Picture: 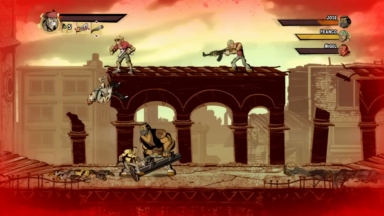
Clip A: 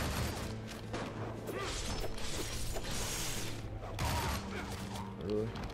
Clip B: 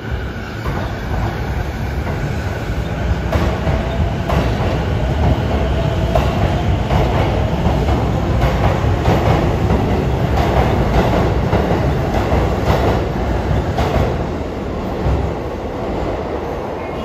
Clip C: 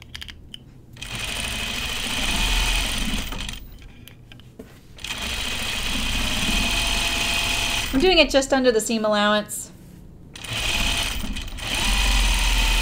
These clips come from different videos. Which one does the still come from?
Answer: A